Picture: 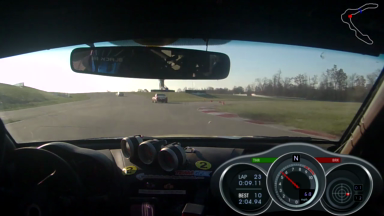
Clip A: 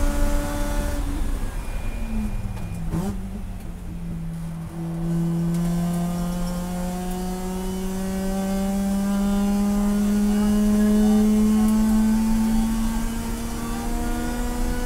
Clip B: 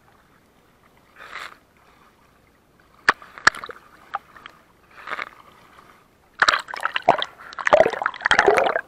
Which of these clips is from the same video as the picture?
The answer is A